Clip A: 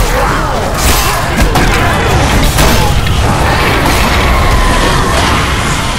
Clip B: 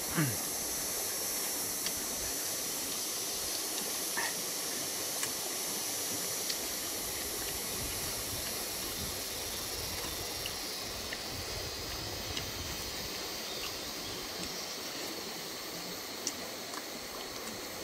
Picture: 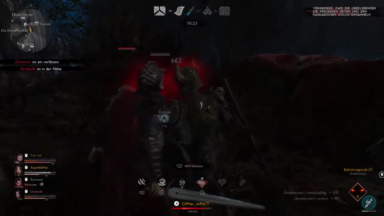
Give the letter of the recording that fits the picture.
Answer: A